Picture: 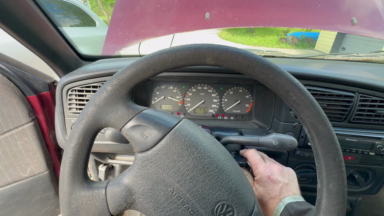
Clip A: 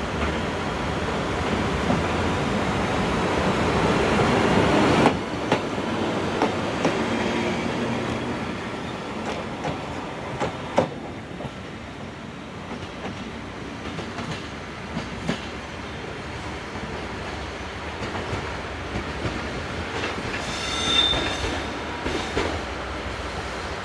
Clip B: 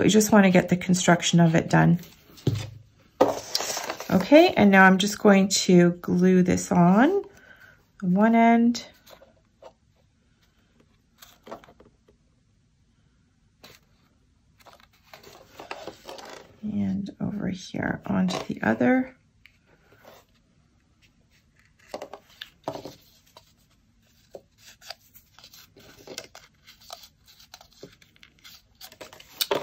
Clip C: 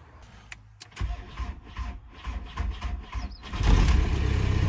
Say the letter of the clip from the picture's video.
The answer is C